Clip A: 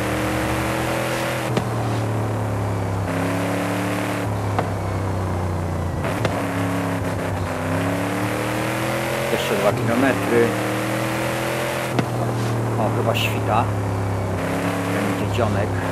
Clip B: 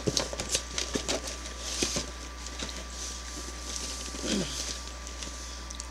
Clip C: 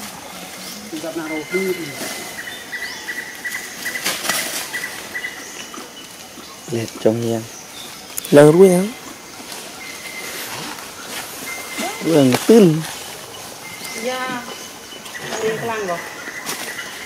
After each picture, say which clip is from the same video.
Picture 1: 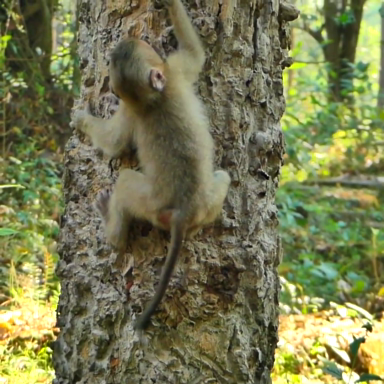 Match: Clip C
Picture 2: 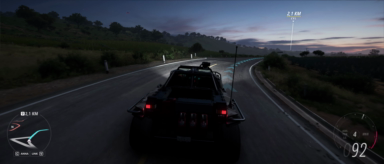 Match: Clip A